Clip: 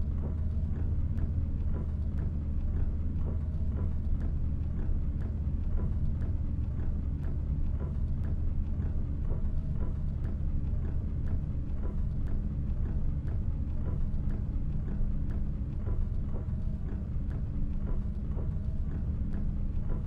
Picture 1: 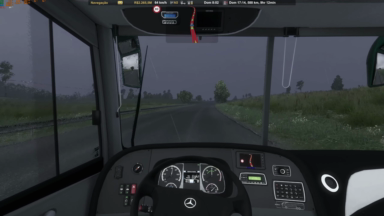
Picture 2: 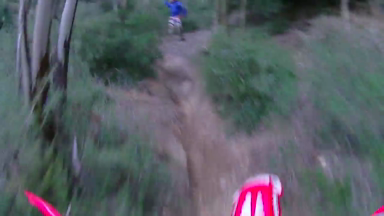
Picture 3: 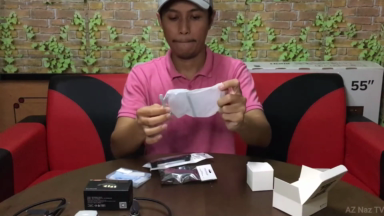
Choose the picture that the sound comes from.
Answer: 1